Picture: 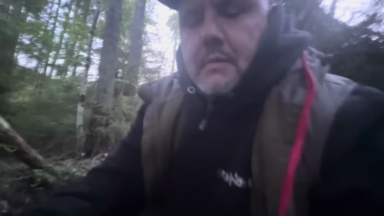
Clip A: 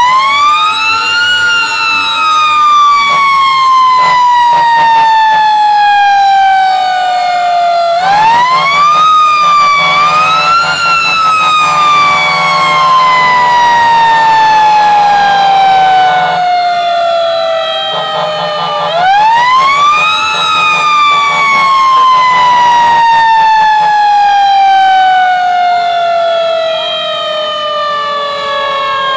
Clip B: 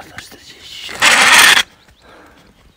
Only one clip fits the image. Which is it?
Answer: B